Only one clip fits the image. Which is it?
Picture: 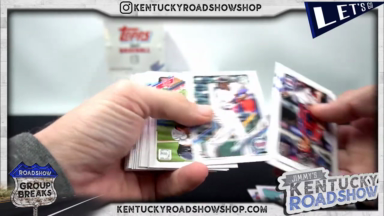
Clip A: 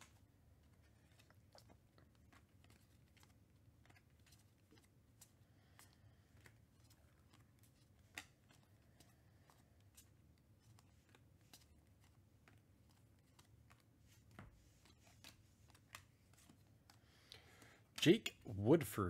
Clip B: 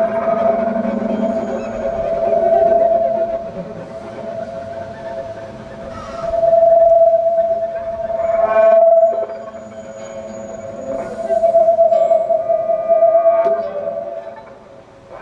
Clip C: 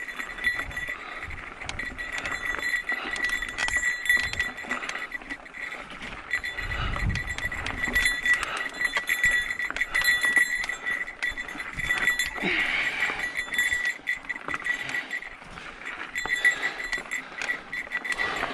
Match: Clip A